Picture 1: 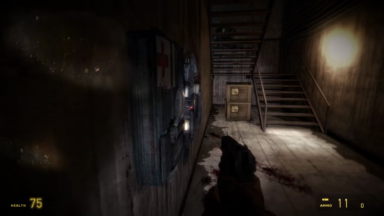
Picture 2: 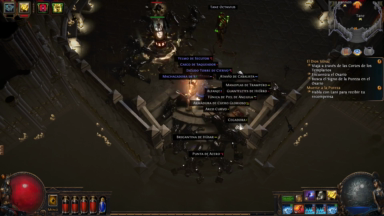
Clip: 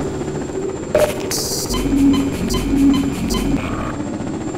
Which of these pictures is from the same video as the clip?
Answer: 1